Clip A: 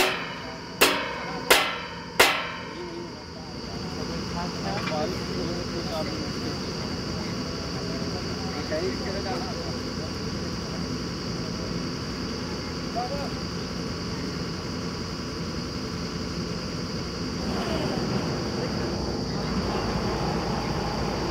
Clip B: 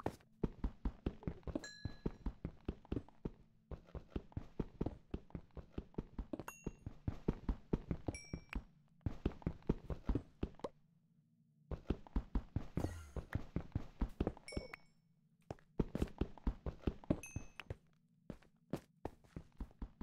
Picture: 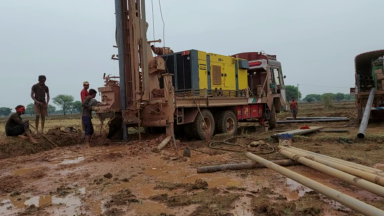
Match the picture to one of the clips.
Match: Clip A